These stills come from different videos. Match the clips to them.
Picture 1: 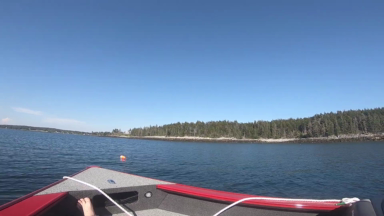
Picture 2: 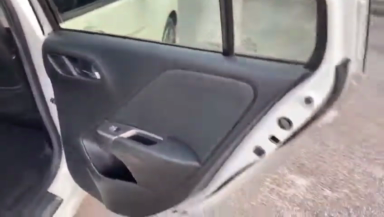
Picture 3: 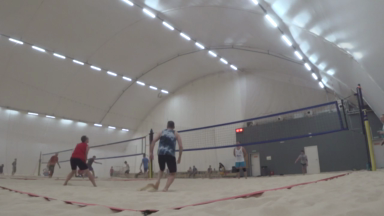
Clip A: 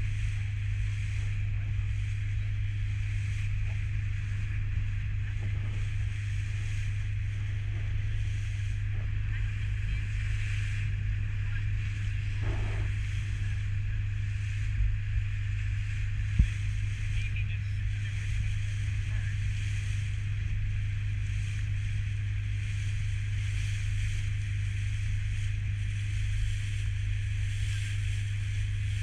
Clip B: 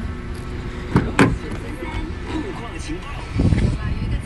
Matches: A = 1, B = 2